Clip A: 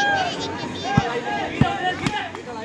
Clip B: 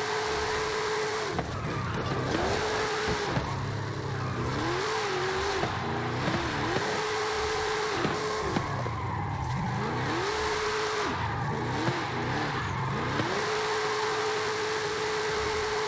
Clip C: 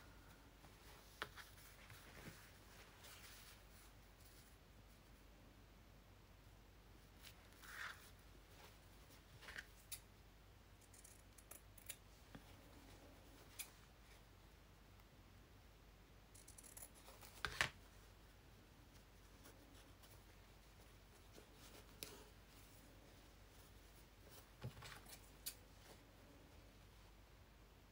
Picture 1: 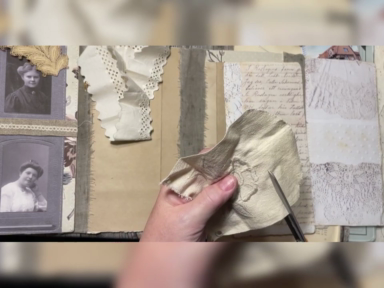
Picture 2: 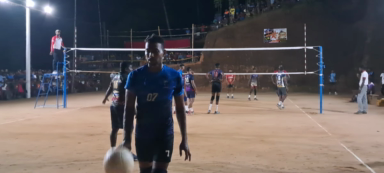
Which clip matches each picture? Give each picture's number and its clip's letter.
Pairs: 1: C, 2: A